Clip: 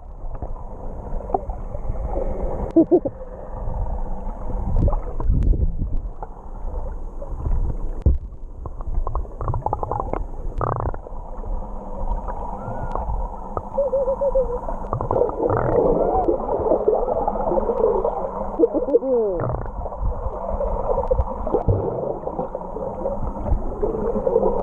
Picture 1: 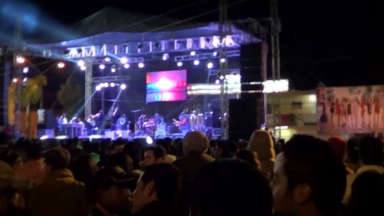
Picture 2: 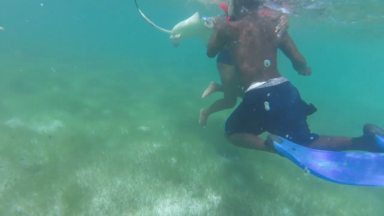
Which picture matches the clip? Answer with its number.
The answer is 2